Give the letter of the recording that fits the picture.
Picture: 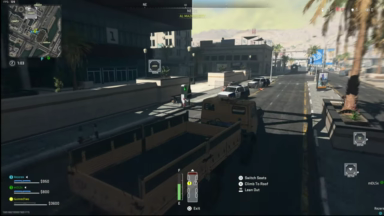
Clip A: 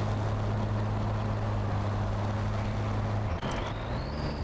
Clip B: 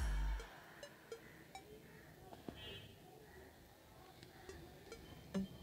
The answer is A